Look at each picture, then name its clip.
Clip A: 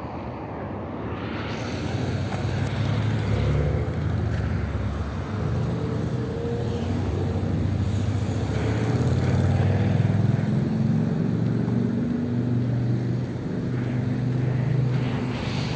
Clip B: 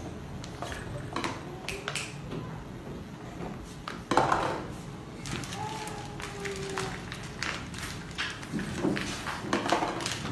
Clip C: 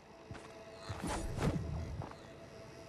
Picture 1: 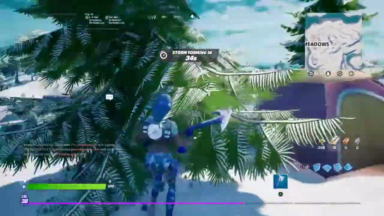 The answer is C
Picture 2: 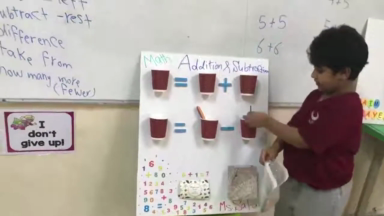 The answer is B